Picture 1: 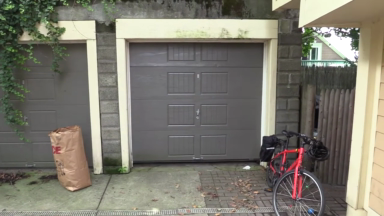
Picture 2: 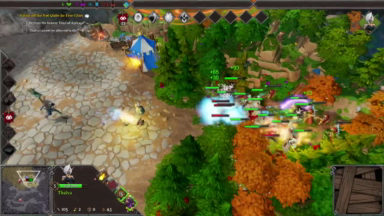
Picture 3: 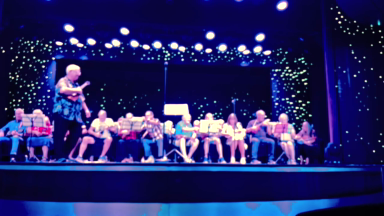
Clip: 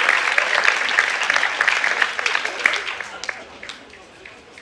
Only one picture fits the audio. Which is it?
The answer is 3